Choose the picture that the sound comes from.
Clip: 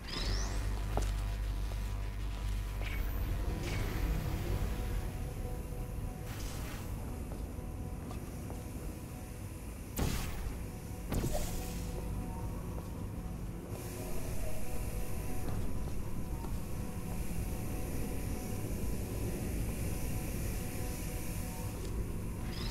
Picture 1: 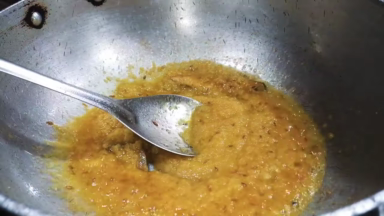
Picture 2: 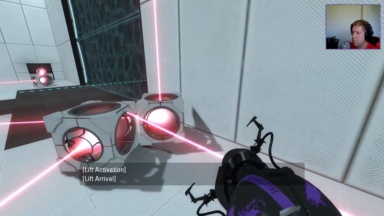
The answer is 2